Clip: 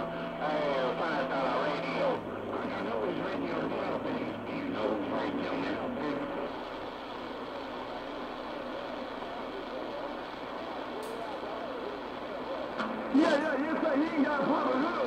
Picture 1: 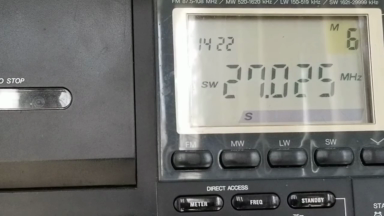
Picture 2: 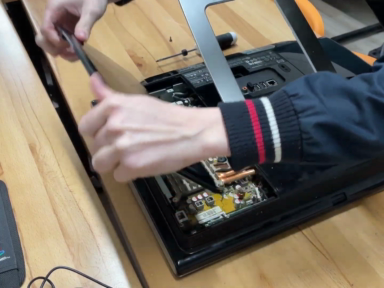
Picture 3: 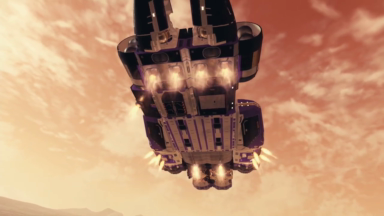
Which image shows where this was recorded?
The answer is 1